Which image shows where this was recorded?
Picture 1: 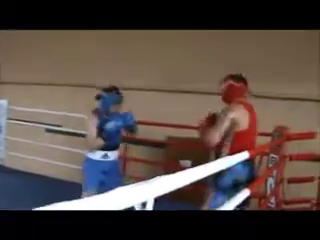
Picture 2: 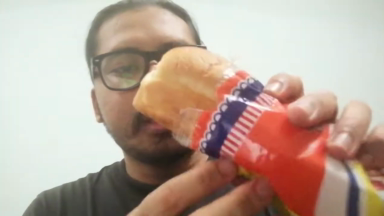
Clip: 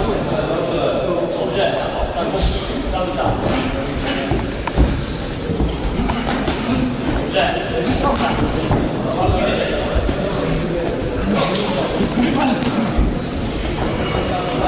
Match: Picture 1